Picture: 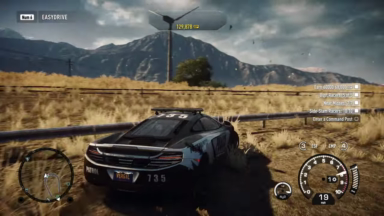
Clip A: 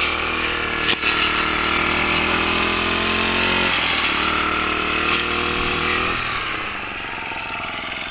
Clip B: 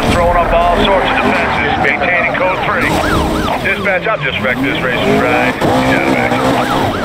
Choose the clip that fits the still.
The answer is B